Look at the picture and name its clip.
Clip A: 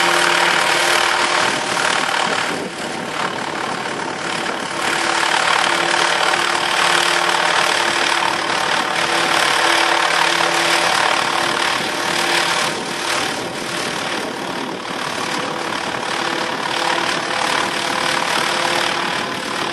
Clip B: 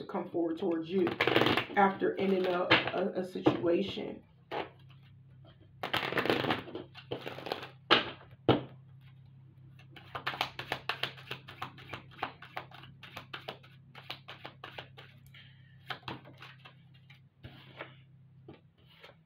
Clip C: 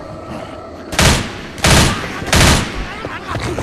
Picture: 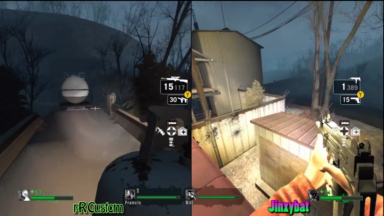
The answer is C